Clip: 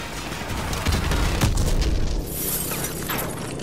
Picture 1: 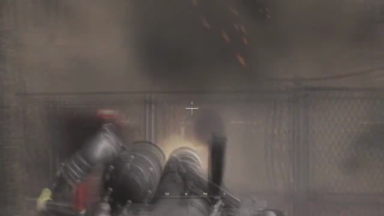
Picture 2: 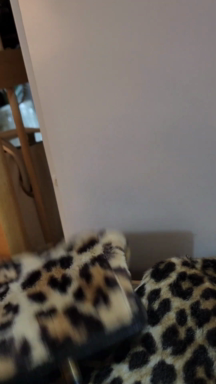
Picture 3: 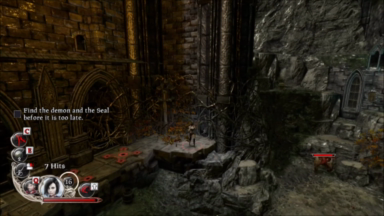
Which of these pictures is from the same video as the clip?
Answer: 1